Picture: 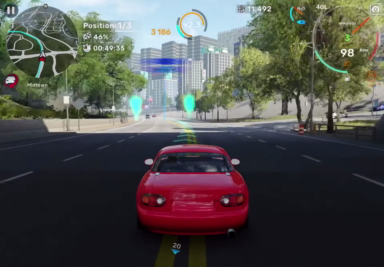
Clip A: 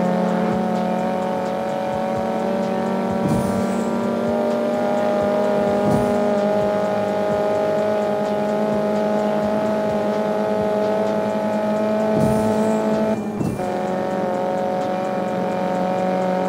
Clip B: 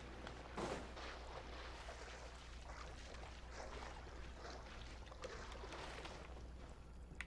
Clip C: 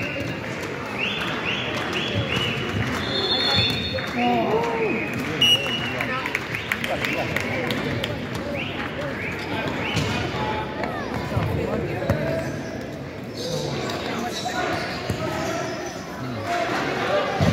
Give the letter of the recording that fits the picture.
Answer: A